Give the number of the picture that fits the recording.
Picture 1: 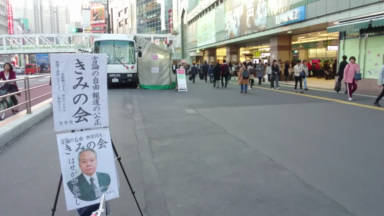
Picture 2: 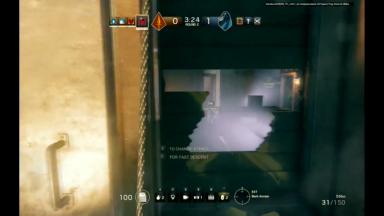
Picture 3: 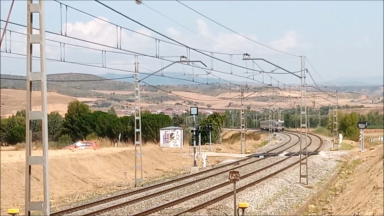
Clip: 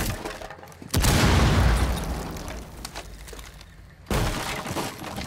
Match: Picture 2